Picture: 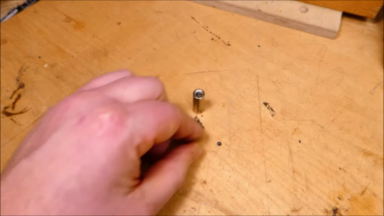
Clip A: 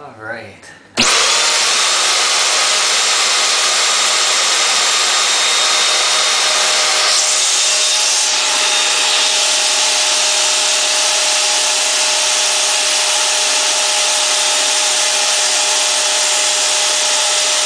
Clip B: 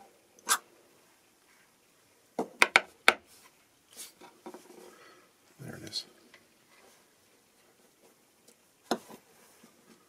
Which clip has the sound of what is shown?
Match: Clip B